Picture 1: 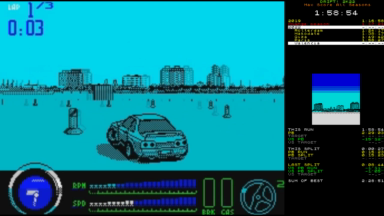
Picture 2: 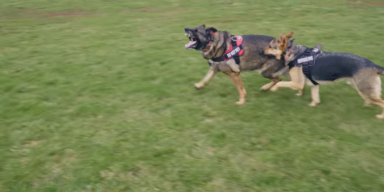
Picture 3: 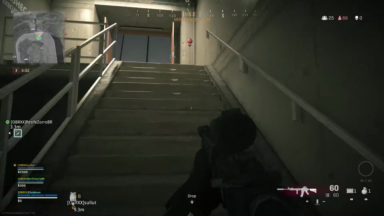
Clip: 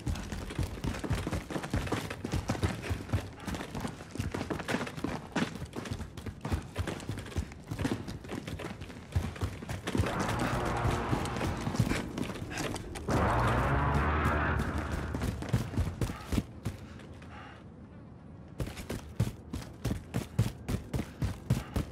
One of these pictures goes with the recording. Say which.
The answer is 3